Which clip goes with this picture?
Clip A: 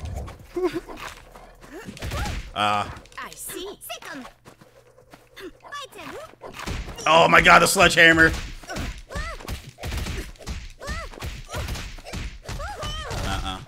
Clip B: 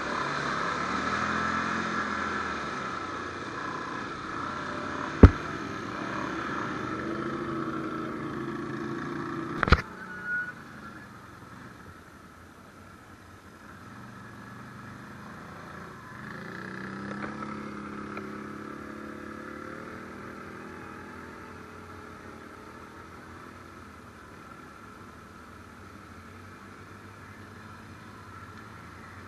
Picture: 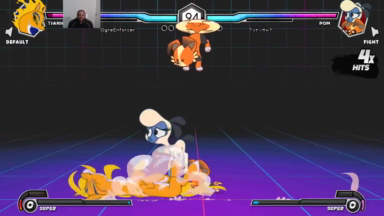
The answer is A